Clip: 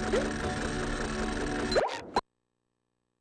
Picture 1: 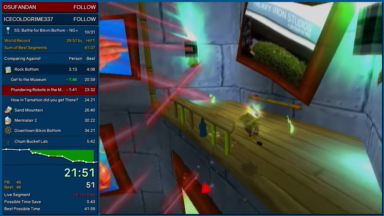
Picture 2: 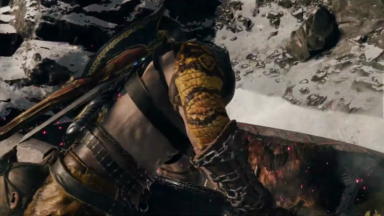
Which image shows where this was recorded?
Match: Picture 1